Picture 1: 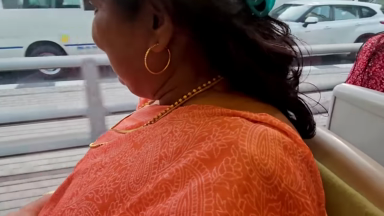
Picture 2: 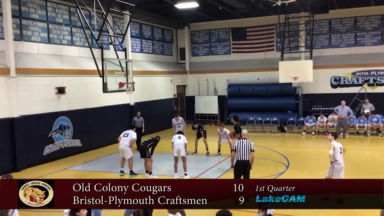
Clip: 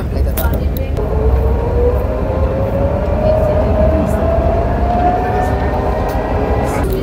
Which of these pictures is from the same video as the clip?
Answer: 1